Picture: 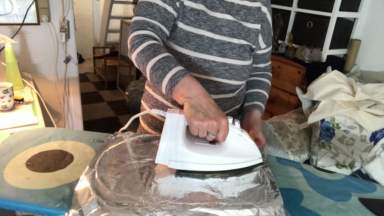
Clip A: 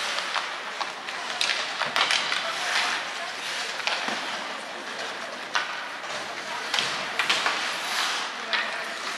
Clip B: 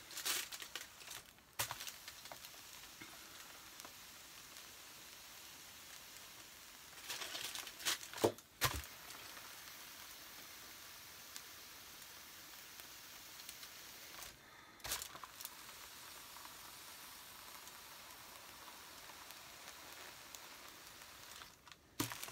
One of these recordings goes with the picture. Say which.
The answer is B